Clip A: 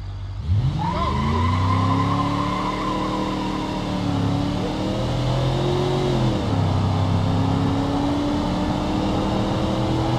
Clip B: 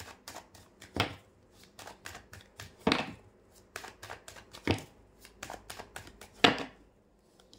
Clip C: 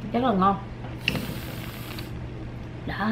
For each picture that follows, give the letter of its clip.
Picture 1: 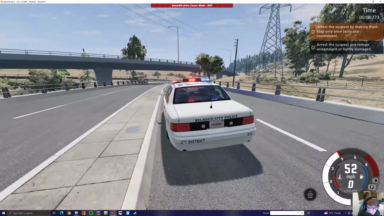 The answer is A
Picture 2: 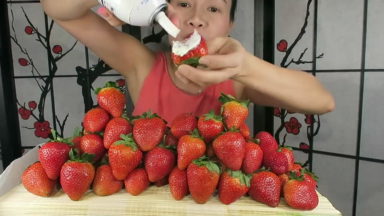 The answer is C